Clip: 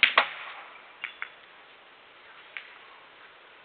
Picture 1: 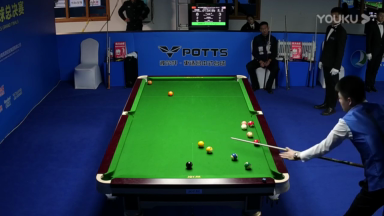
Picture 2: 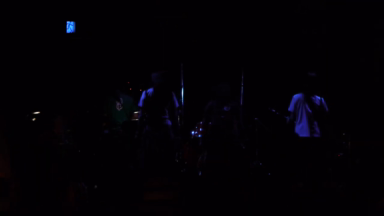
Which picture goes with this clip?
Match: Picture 1